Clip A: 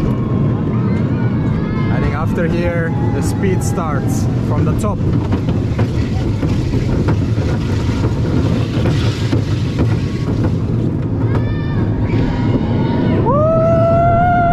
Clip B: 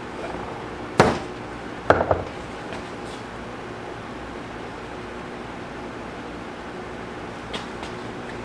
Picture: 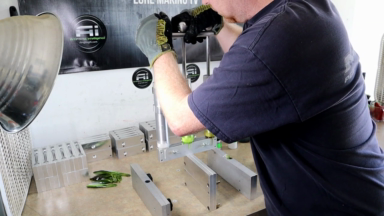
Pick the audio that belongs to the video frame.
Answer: B